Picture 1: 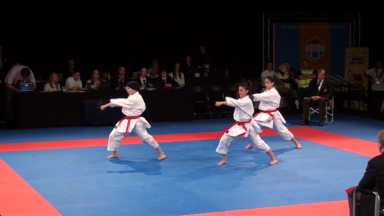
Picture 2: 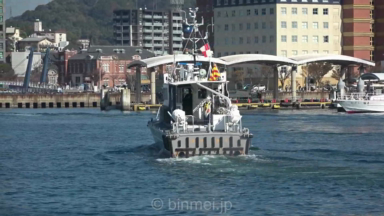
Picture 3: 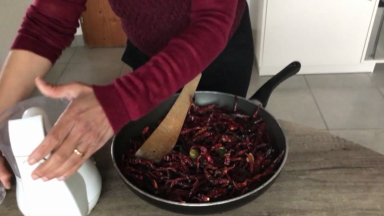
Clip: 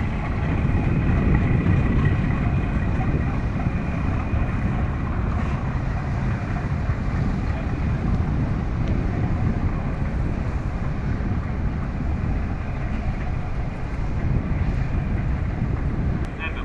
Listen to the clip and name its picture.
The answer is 2